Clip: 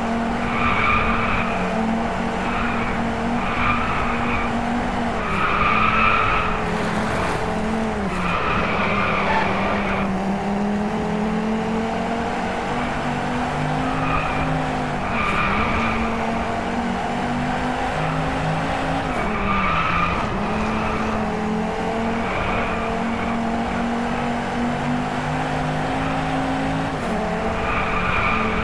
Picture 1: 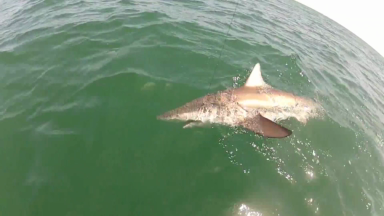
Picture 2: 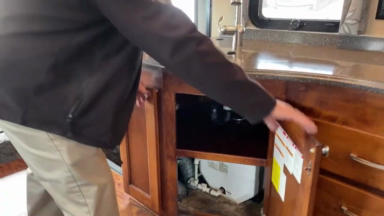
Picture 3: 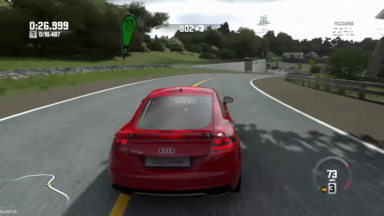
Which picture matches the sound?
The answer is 3